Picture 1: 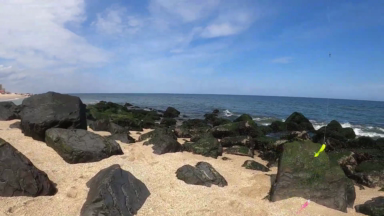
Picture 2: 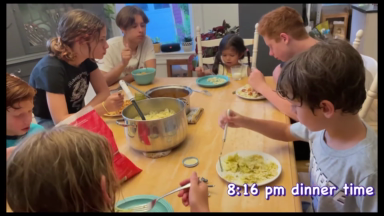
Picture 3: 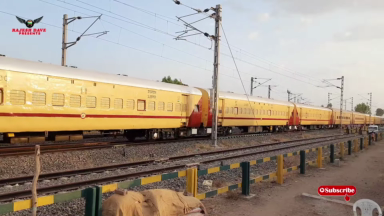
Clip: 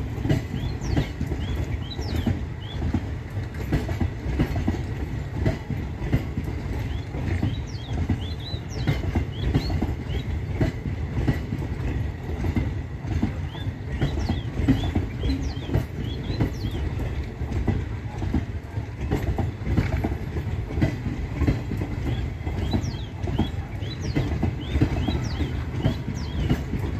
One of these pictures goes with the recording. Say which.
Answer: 3